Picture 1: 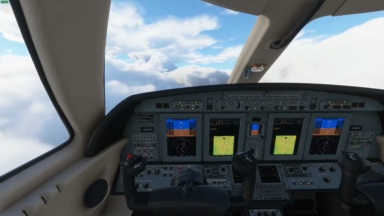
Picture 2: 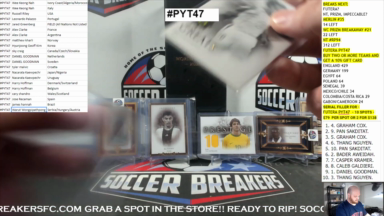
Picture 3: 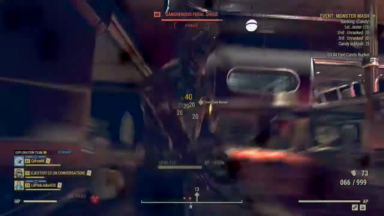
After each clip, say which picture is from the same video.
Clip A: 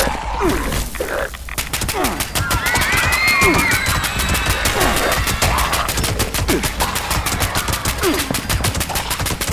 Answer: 3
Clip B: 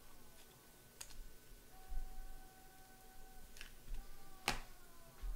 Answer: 2